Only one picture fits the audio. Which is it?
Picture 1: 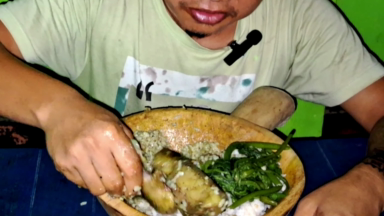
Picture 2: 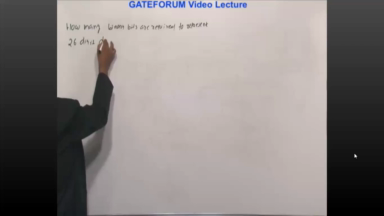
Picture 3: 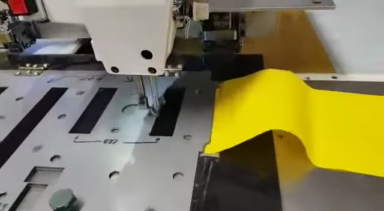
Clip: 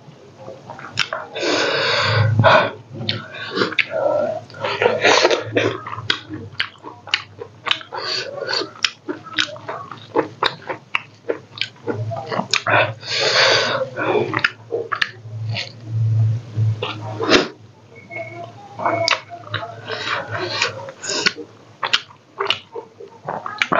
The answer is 1